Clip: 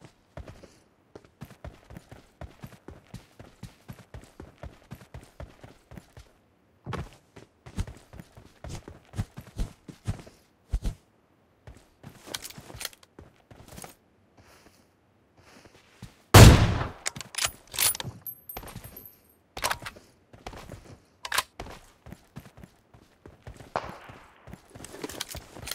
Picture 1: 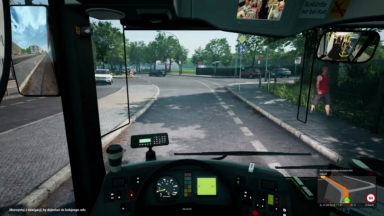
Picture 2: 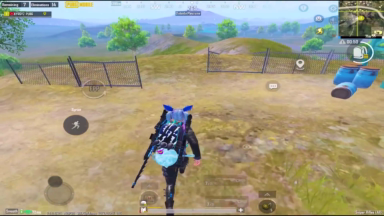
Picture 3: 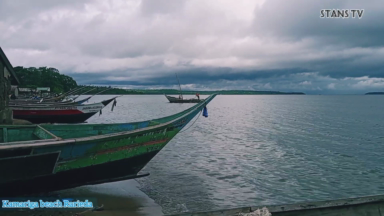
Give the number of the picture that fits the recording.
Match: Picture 2